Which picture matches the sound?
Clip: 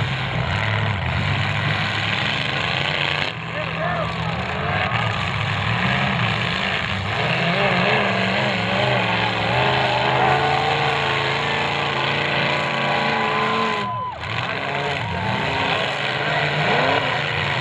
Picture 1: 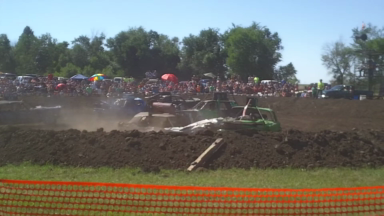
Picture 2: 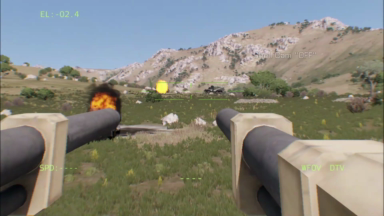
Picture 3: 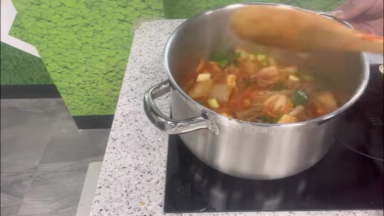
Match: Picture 1